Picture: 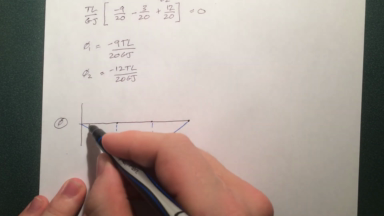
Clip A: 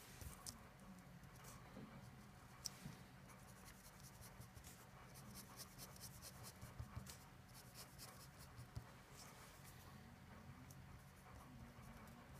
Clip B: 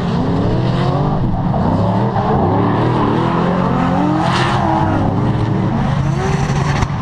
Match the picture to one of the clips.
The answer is A